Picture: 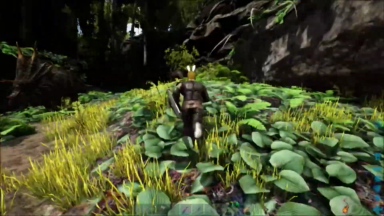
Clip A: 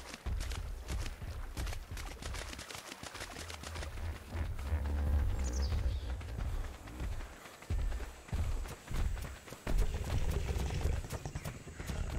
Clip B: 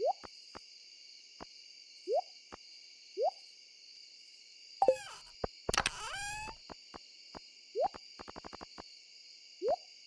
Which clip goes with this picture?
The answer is A